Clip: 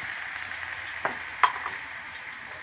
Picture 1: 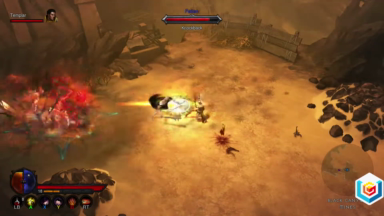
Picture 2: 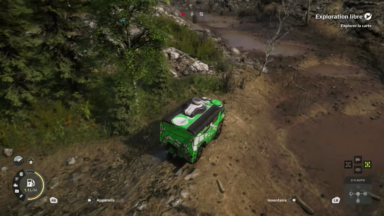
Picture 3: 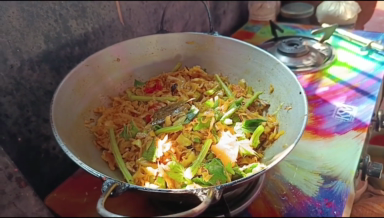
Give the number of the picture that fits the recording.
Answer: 3